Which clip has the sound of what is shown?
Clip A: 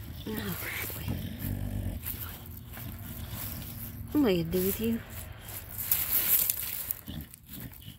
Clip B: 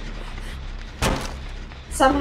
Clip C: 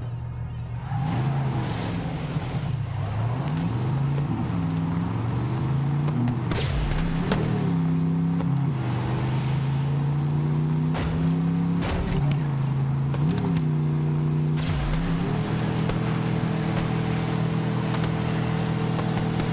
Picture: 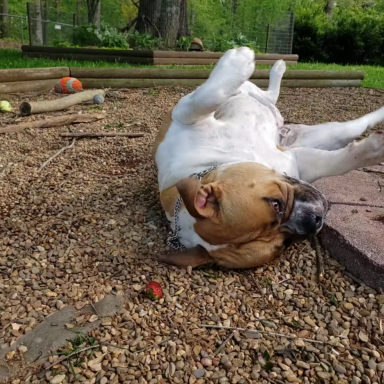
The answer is A